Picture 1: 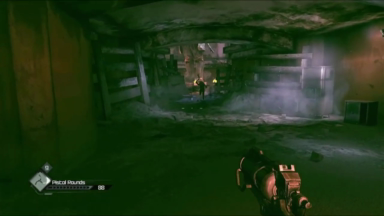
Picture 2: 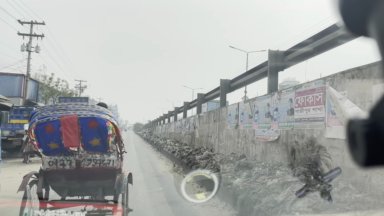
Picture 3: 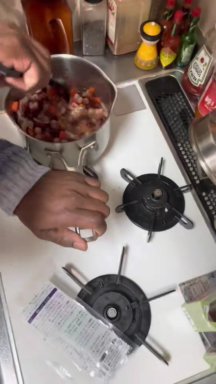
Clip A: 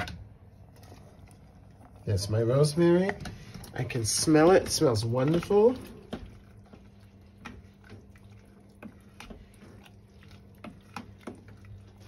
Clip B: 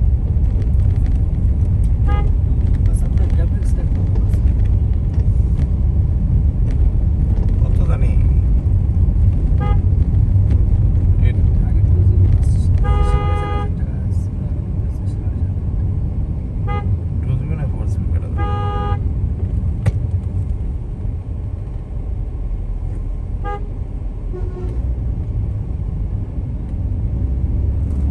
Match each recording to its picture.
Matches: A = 3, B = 2